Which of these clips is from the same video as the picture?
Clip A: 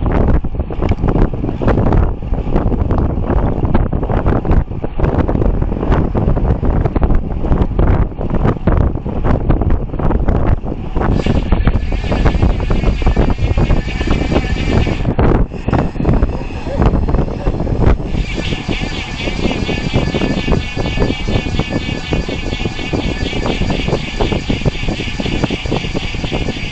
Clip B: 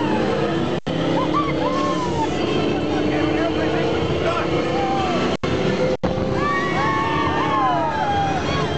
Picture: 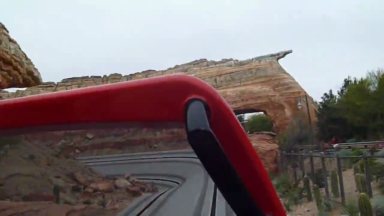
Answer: B